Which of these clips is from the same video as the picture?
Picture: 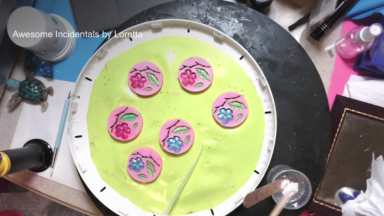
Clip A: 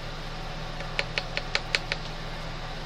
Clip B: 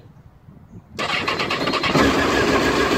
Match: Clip A